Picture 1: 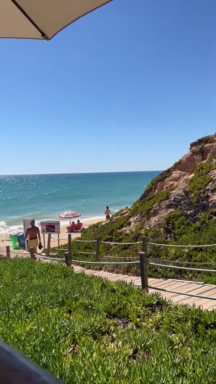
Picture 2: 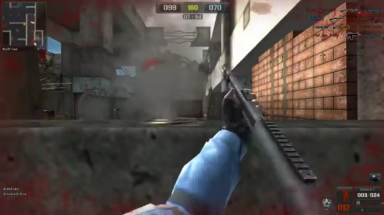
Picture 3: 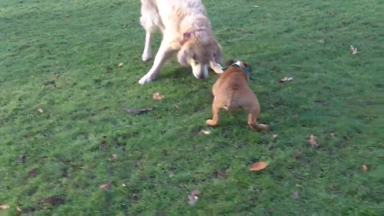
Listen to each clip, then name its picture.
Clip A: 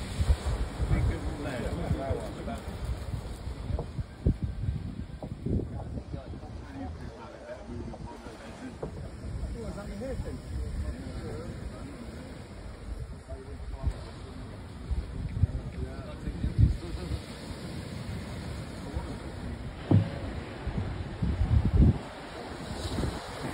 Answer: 1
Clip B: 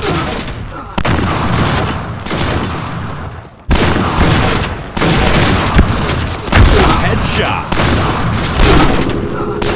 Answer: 2